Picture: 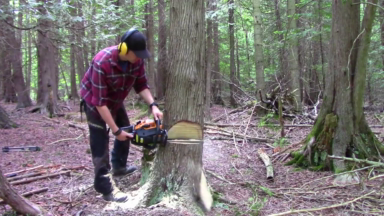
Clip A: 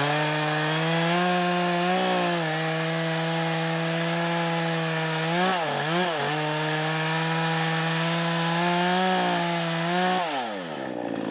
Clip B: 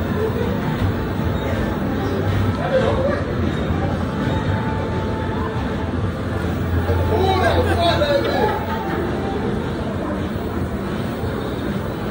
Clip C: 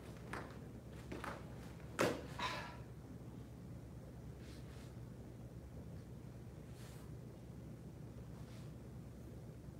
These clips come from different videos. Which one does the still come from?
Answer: A